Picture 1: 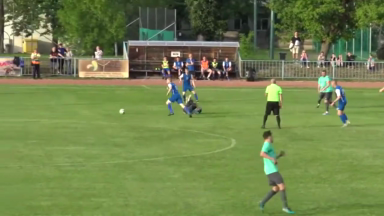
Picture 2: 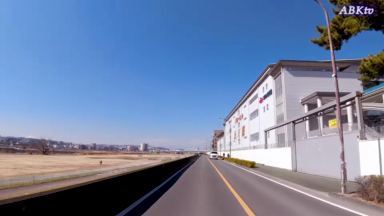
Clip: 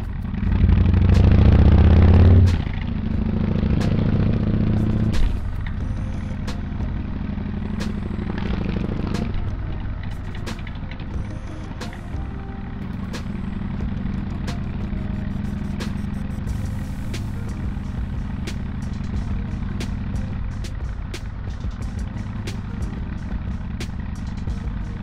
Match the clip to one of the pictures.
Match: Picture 2